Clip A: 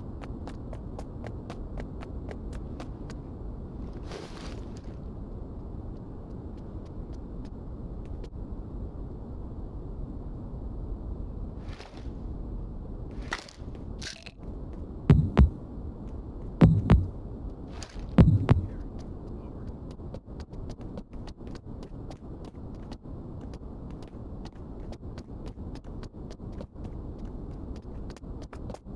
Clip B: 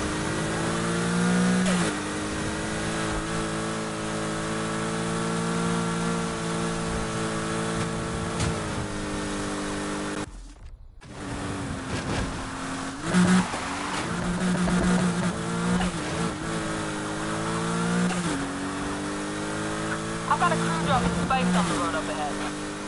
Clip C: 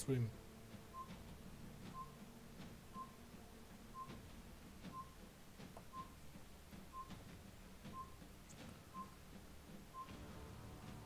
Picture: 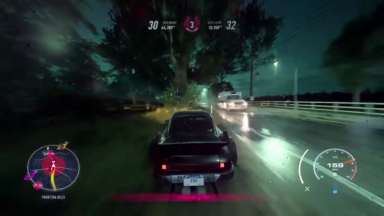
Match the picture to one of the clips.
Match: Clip B